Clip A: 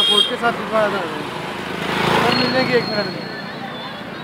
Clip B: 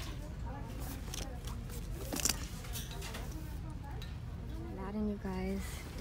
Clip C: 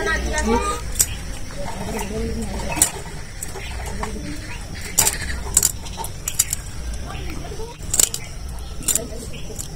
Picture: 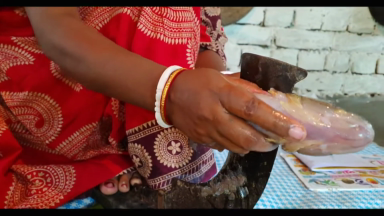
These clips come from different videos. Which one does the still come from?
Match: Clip C